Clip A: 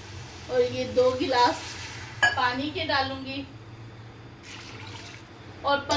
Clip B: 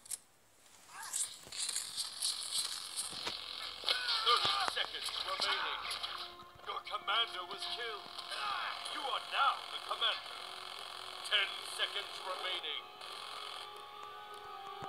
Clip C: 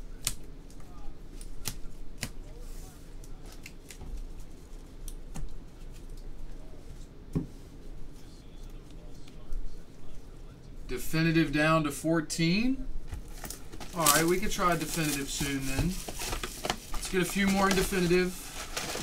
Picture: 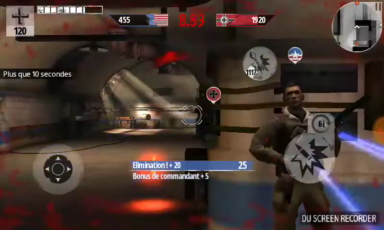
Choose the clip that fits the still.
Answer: B